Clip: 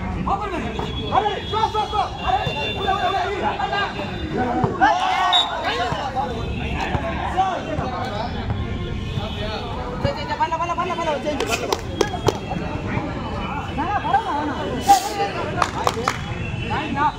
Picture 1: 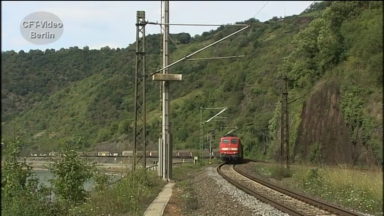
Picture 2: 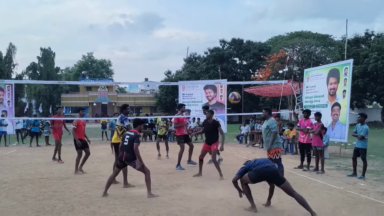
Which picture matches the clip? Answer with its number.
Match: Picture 2